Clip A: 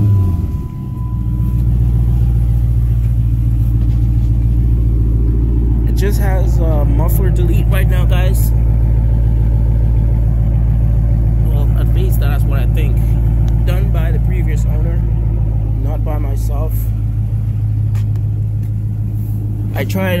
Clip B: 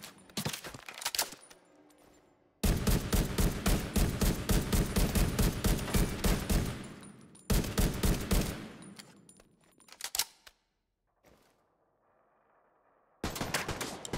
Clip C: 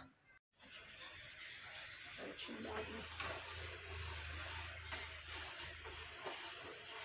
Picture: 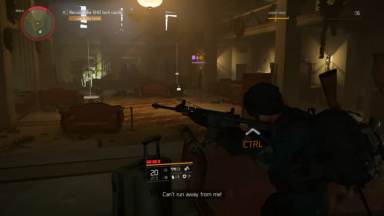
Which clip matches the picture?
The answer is B